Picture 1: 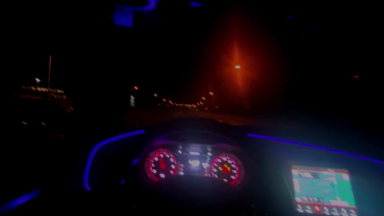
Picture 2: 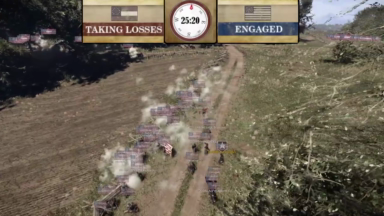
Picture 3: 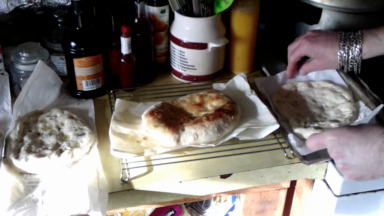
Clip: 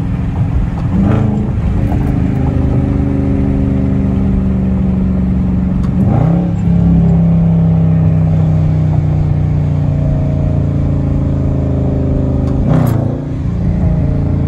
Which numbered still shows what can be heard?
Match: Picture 1